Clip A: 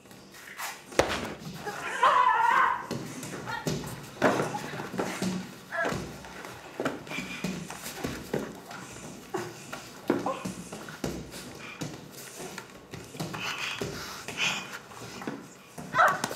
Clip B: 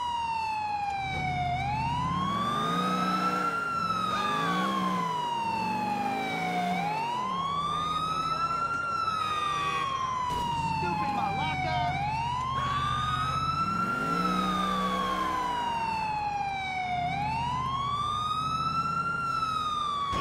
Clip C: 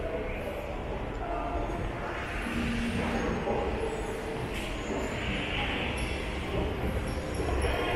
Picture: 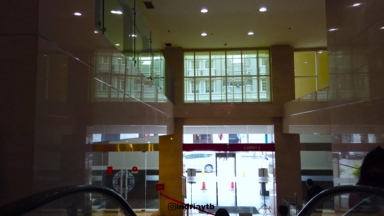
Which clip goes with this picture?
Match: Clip C